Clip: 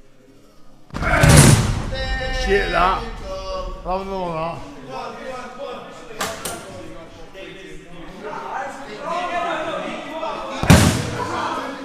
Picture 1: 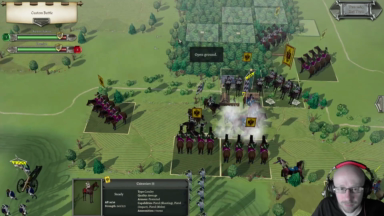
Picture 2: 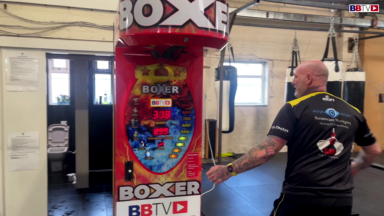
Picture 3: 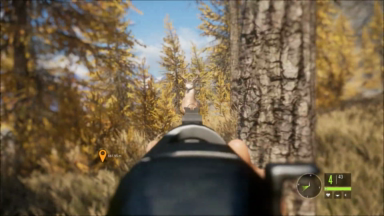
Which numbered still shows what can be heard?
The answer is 2